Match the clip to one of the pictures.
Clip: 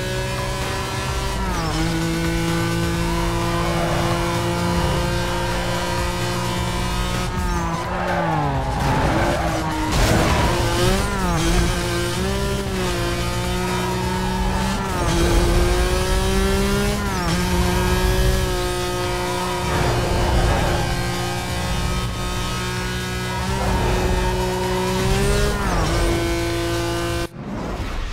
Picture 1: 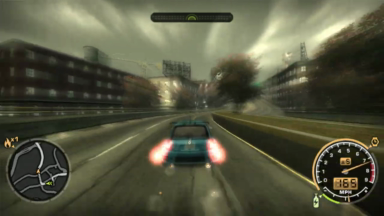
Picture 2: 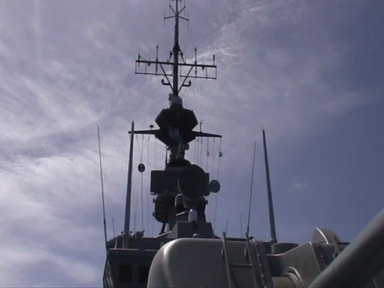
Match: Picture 1